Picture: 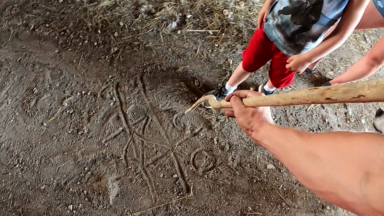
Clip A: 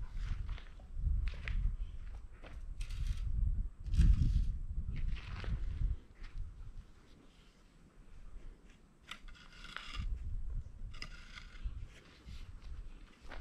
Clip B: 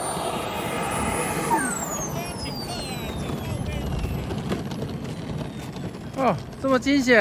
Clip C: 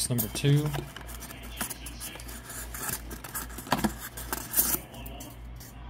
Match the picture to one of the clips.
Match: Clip A